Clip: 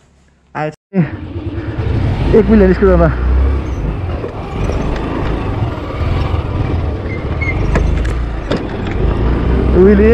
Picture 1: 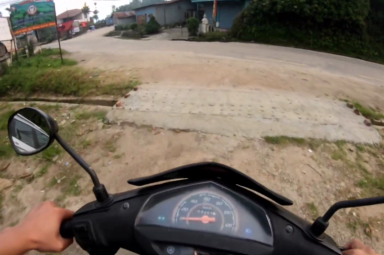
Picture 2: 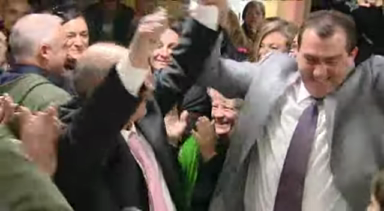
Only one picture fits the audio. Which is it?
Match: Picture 1